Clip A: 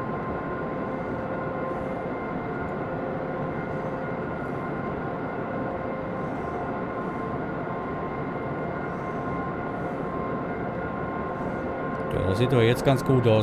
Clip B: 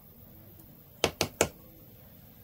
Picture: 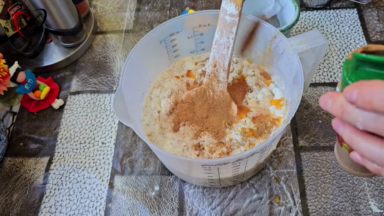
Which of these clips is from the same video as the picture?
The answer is B